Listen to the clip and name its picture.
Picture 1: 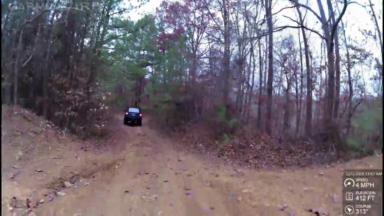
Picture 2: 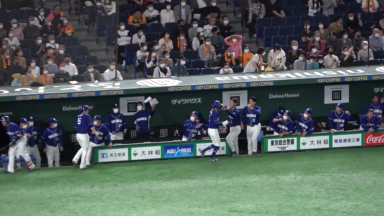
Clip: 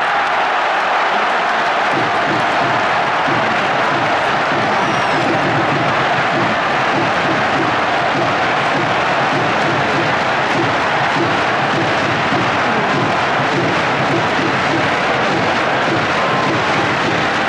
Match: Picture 2